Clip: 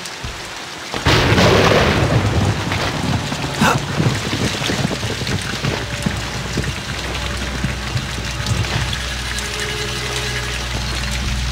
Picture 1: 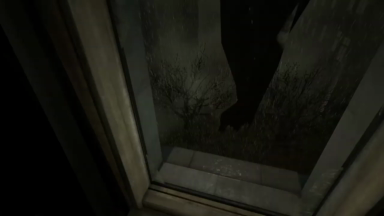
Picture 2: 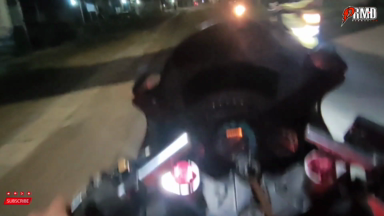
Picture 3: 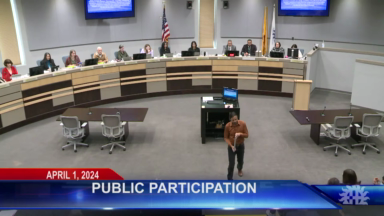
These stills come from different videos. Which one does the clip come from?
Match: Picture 1